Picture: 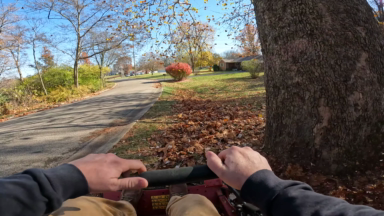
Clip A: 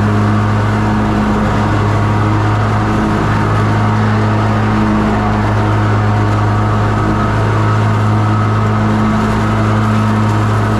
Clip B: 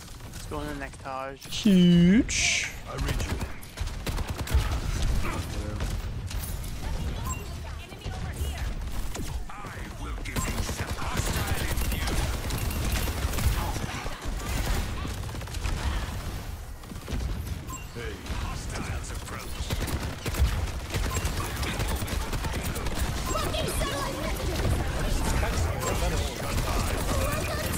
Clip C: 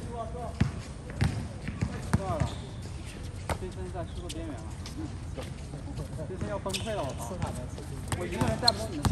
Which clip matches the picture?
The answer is A